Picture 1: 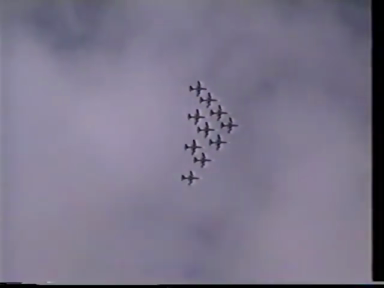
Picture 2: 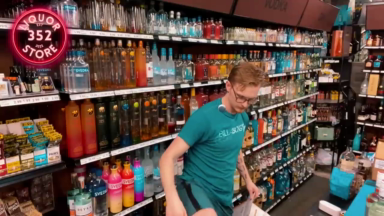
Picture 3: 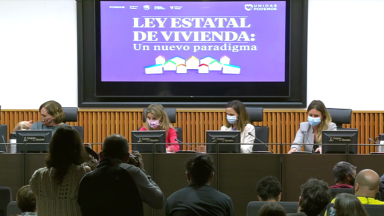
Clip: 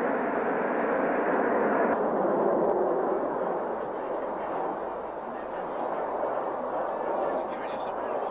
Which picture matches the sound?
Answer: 1